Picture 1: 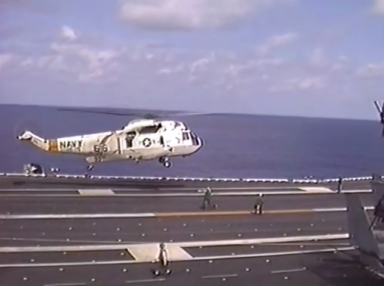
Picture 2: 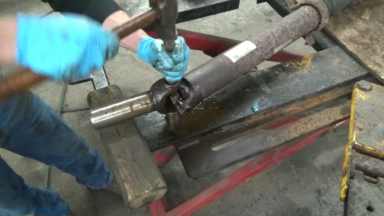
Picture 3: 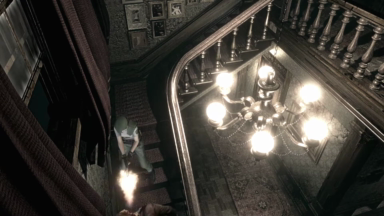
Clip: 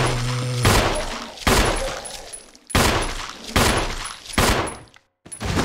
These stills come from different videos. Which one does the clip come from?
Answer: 3